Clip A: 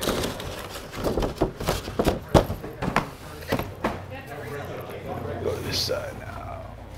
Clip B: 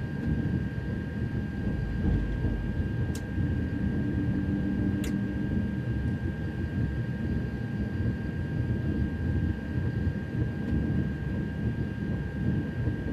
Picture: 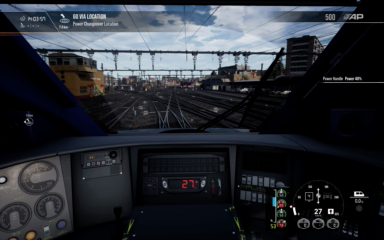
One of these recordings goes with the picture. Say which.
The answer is B